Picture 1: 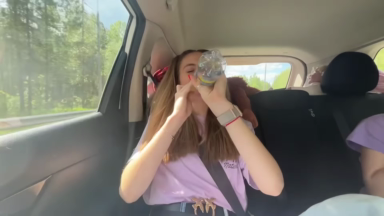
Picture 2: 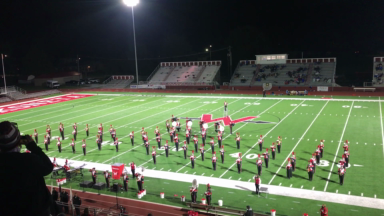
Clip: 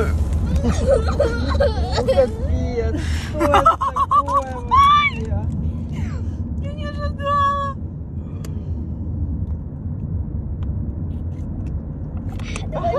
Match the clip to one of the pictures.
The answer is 1